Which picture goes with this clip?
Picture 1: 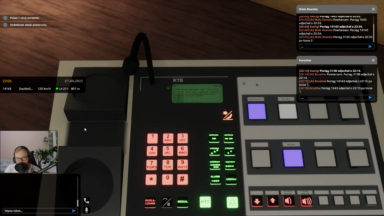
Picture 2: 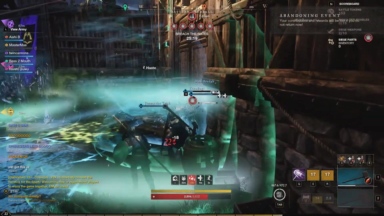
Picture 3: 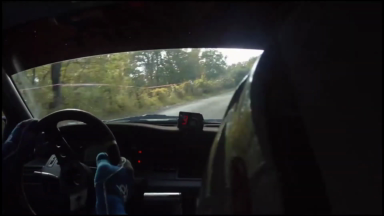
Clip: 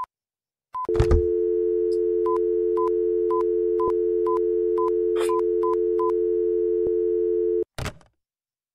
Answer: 1